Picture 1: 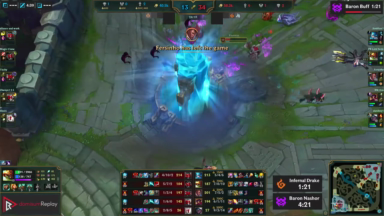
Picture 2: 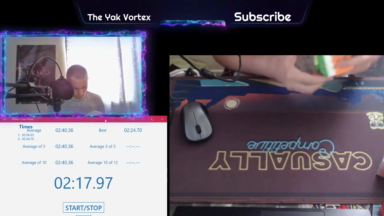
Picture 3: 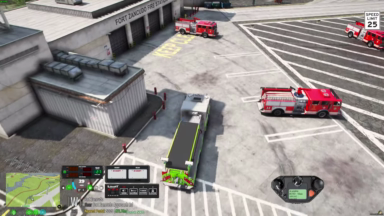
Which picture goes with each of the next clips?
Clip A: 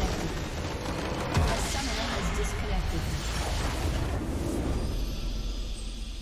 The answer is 1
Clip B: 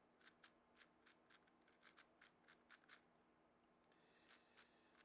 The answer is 2